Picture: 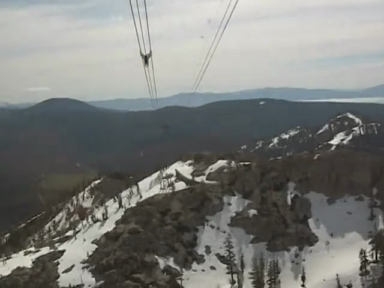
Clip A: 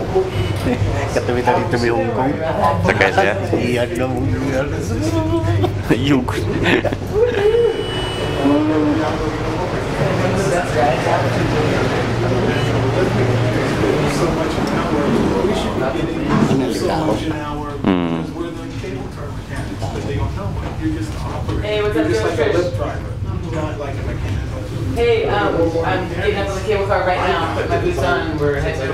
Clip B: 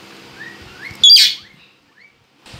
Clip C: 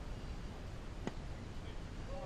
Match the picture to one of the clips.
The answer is A